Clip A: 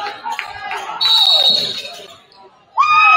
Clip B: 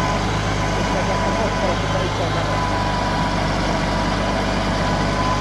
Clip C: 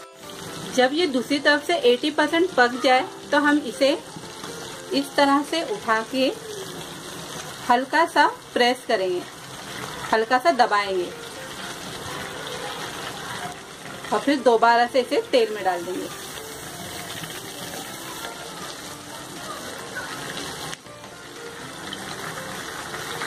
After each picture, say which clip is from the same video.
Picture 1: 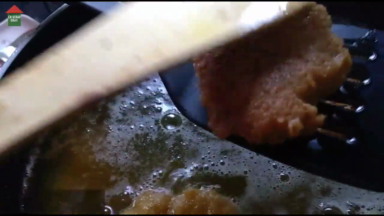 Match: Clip C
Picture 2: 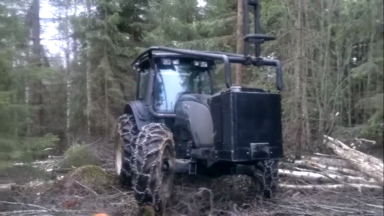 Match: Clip B